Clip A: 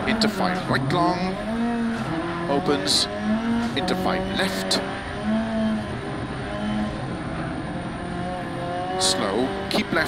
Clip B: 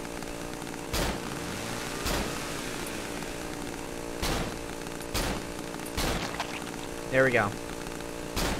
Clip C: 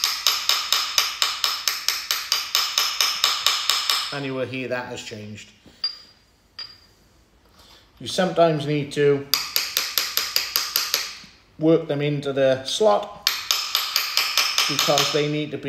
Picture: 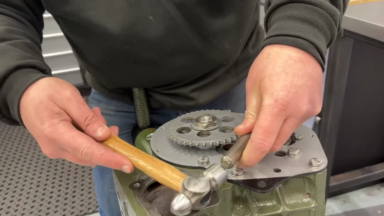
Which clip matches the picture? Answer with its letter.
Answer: C